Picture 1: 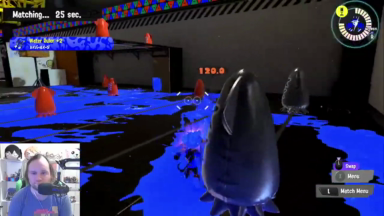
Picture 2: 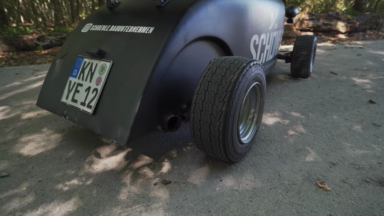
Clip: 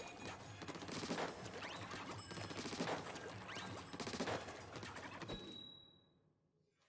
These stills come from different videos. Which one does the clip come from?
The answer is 1